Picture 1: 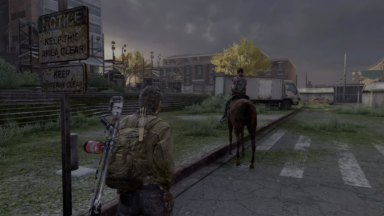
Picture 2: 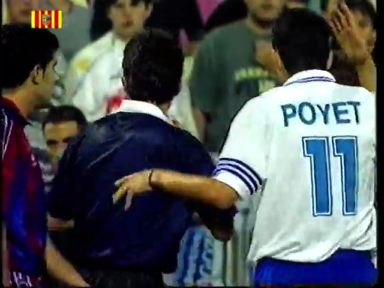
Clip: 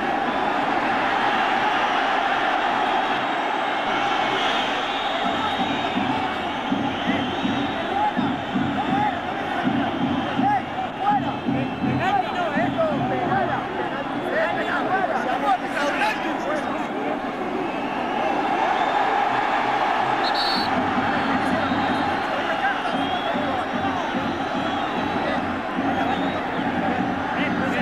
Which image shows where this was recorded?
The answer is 2